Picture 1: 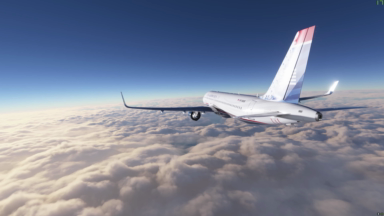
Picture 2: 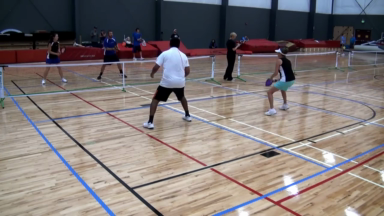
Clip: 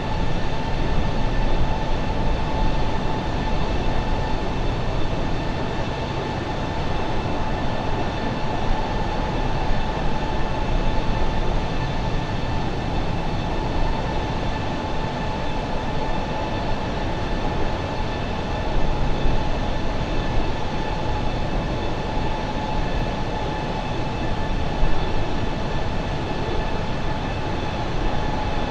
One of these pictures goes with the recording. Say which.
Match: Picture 1